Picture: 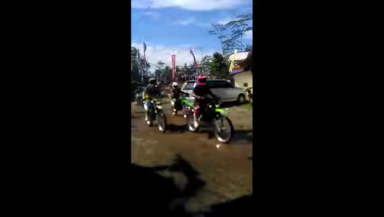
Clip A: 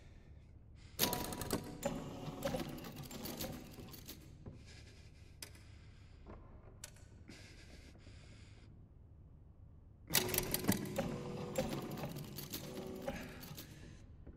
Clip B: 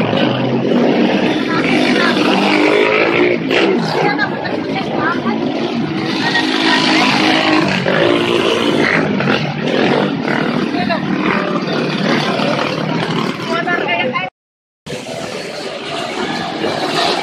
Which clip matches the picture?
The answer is B